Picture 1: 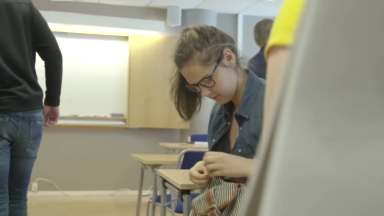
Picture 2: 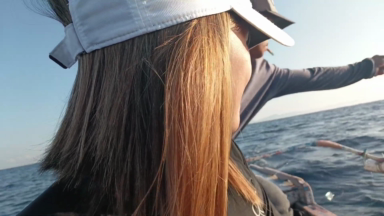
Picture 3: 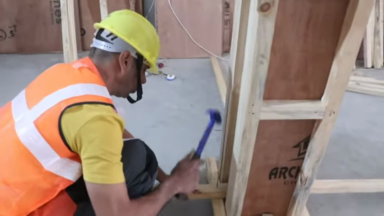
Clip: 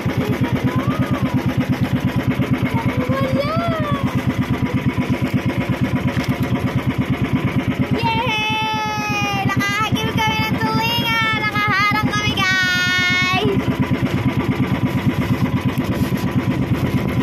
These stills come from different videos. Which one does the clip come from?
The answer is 2